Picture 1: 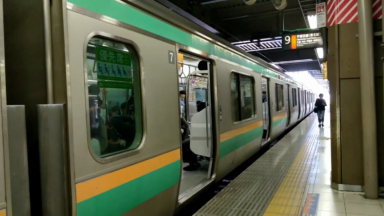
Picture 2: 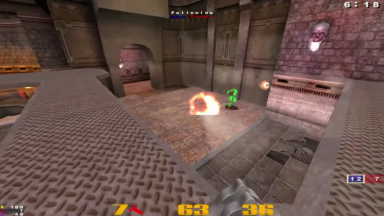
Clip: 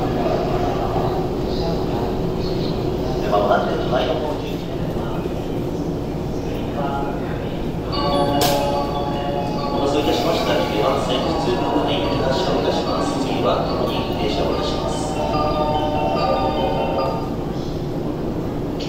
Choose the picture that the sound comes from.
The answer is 1